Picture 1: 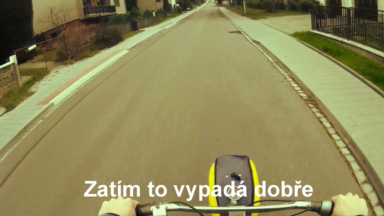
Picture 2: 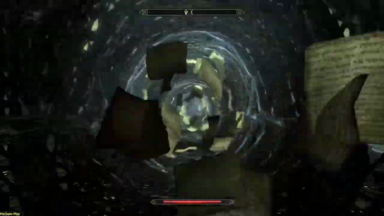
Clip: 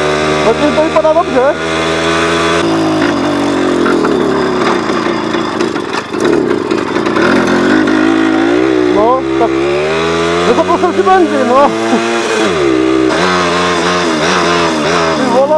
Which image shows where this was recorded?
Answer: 1